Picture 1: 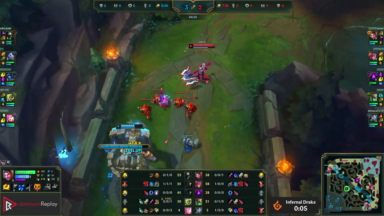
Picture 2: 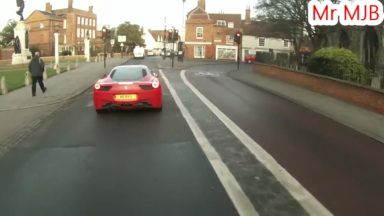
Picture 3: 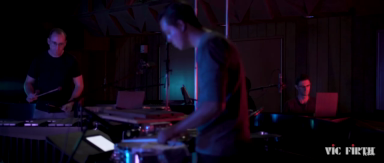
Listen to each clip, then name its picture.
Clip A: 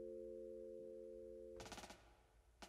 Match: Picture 3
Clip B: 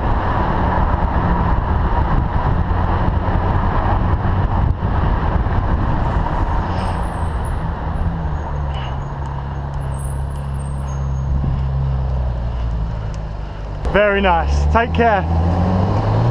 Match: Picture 2